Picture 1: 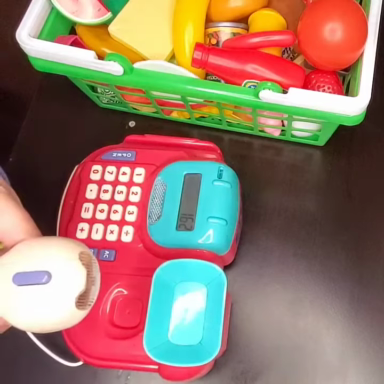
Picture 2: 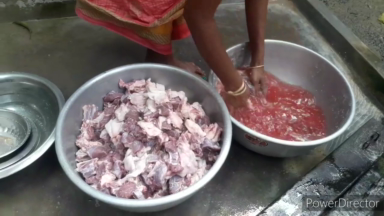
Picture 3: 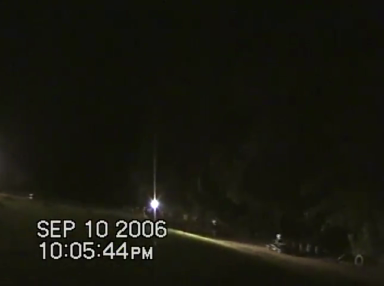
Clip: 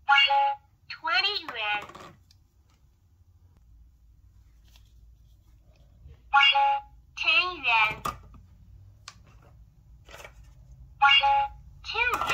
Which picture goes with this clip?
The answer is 1